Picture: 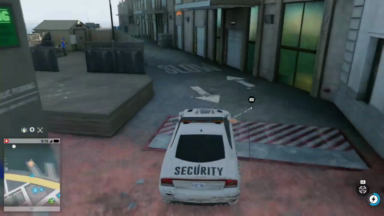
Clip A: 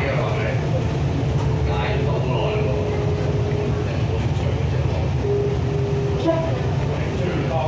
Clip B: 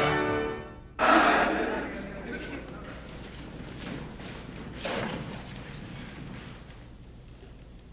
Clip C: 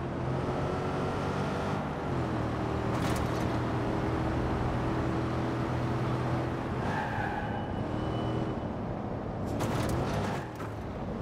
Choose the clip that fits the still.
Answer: C